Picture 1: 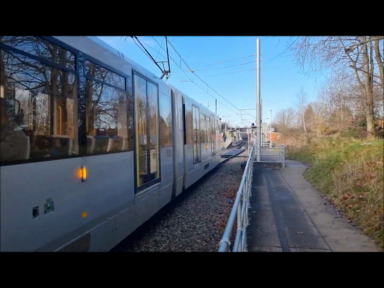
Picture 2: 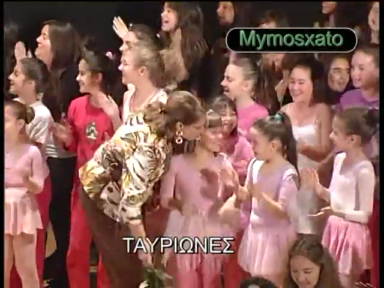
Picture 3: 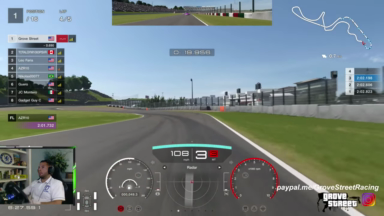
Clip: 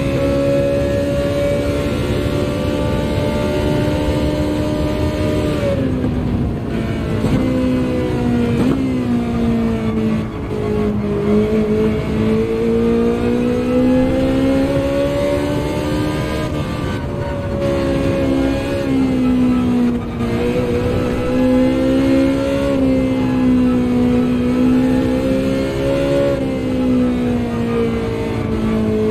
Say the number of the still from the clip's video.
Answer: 3